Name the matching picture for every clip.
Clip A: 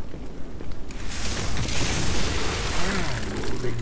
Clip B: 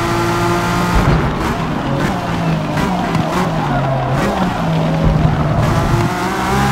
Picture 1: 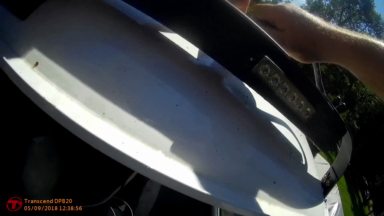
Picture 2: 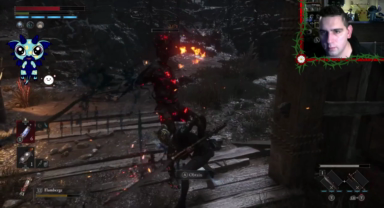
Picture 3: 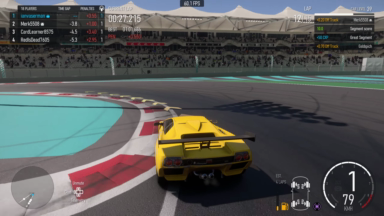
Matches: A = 2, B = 3